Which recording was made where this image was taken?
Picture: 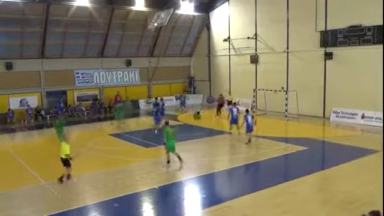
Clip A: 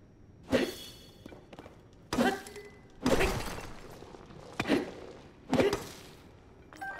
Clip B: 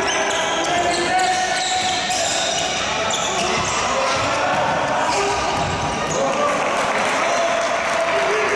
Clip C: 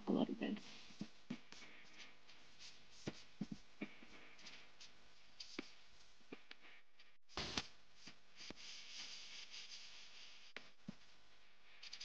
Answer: B